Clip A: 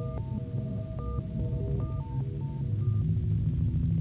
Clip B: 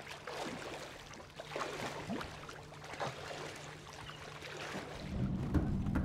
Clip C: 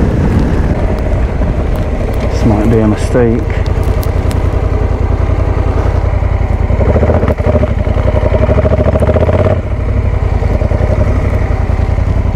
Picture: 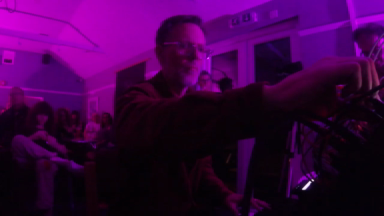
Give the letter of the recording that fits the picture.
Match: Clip A